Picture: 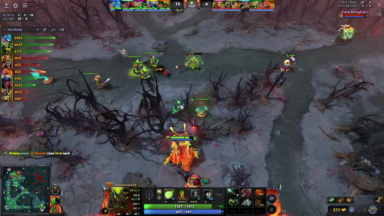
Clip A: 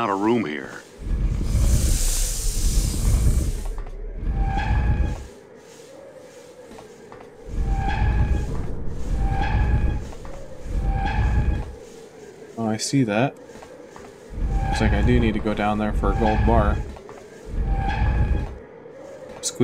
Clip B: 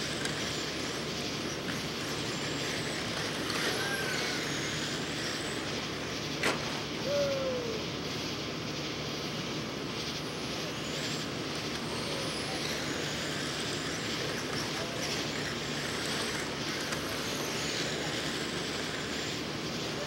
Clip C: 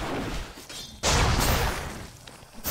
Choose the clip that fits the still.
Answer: C